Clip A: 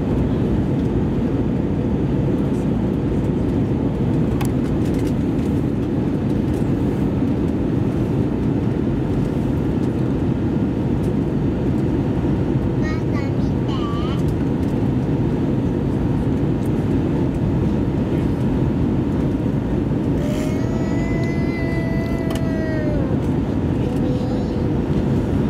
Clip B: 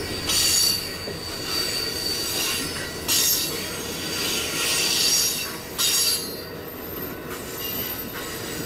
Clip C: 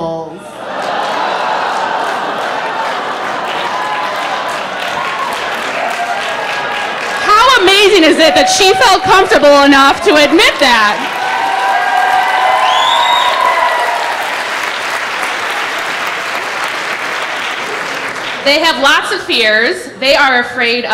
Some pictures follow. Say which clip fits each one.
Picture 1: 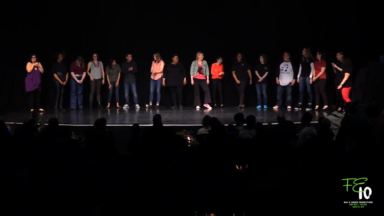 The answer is C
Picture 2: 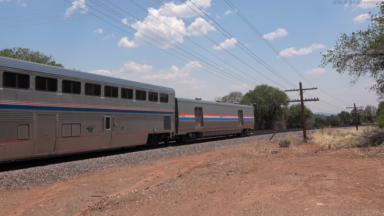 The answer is B